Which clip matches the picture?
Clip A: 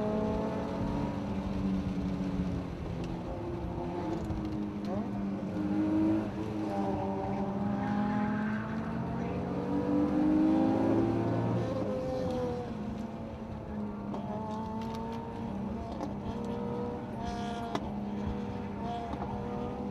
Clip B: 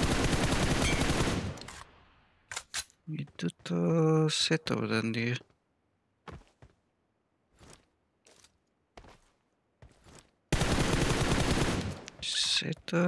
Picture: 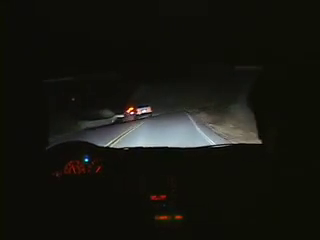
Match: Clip A